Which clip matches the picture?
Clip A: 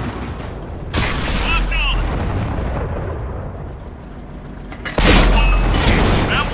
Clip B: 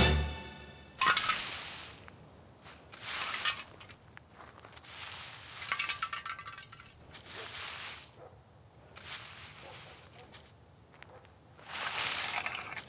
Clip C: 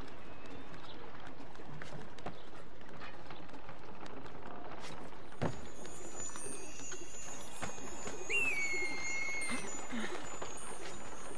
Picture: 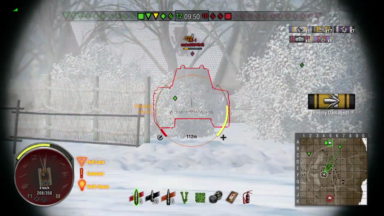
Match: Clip A